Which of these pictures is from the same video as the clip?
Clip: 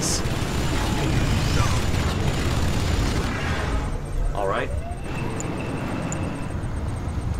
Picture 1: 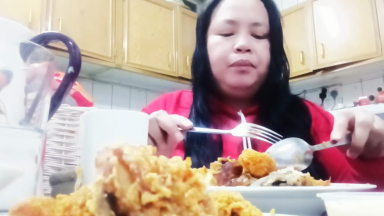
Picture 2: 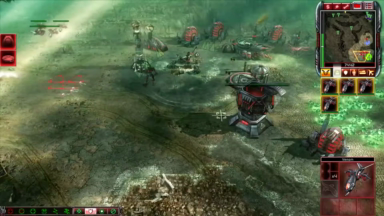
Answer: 2